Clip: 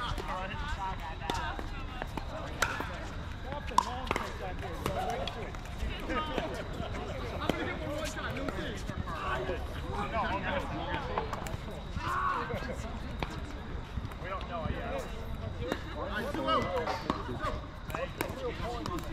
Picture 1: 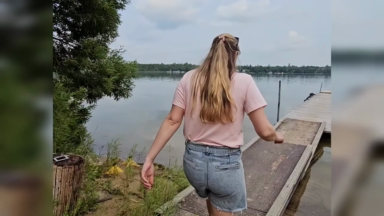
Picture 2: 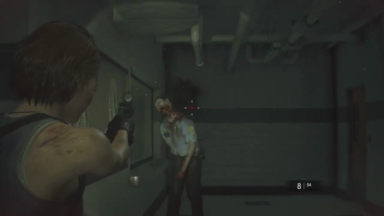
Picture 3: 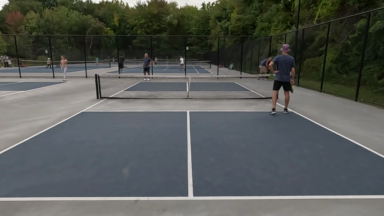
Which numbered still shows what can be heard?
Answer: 3